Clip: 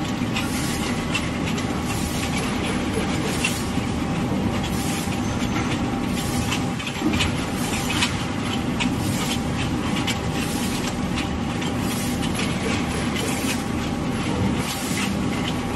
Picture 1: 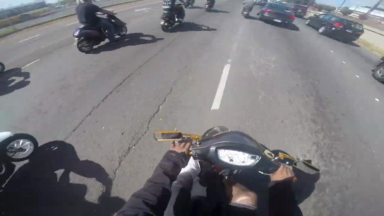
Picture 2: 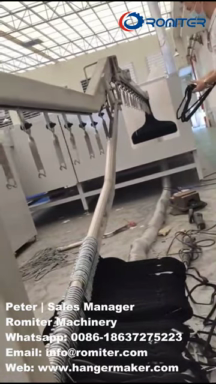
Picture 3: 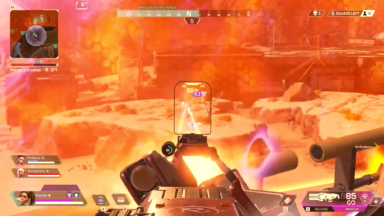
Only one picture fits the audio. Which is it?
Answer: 2